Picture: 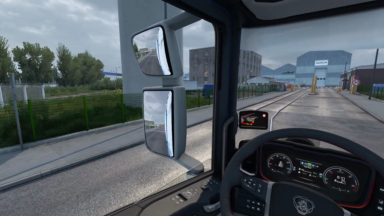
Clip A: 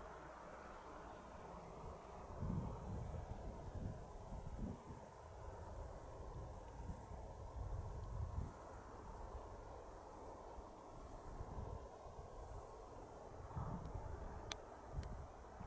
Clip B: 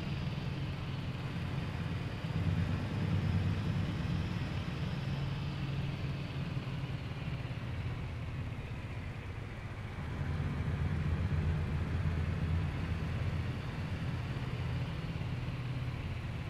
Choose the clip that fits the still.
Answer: B